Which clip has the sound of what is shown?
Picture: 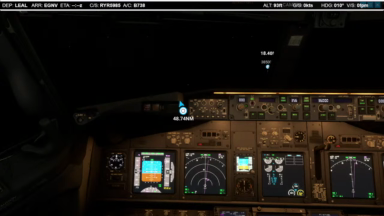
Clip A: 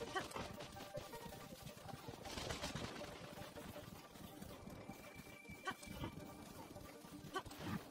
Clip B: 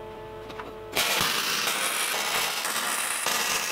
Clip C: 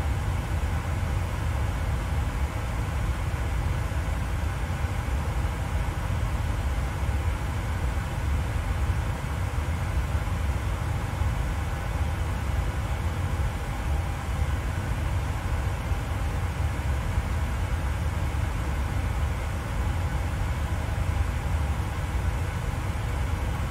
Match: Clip C